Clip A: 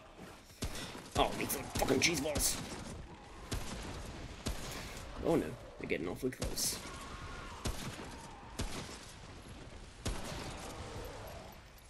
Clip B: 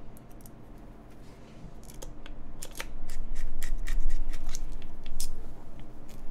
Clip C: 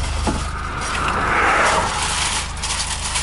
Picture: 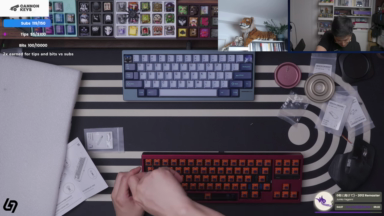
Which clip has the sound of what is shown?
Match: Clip B